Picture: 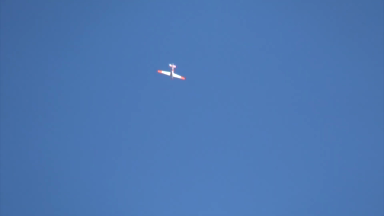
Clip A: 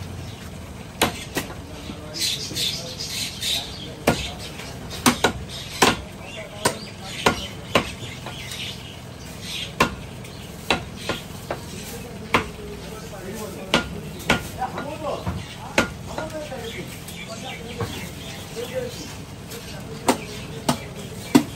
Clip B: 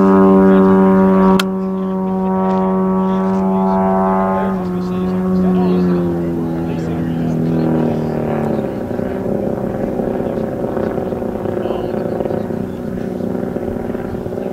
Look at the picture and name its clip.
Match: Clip B